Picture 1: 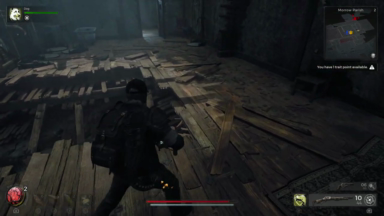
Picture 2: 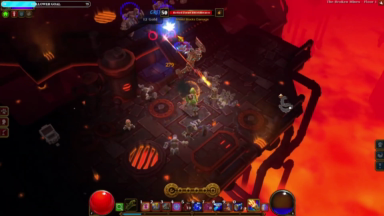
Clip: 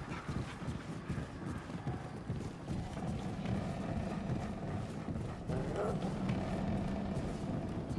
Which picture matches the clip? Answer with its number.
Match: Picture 1